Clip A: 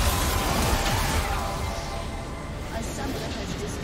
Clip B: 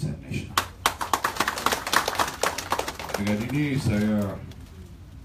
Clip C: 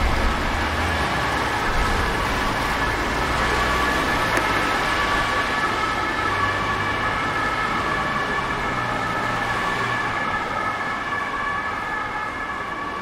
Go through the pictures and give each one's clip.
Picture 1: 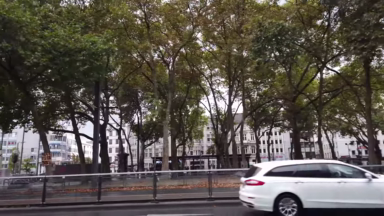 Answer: C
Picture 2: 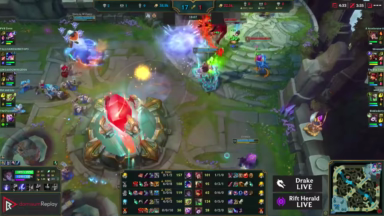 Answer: A